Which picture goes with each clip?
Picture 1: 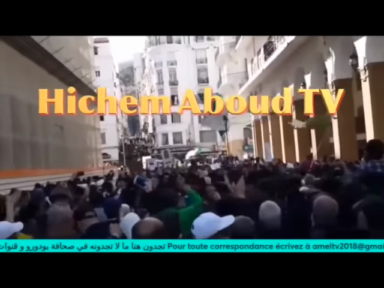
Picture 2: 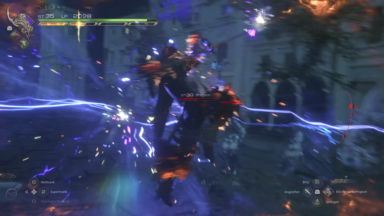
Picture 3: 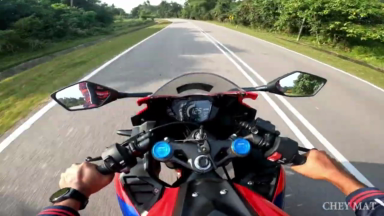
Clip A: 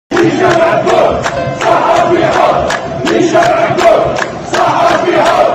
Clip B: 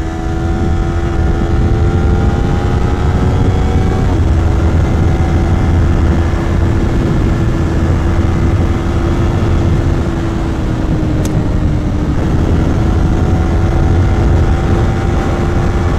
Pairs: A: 1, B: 3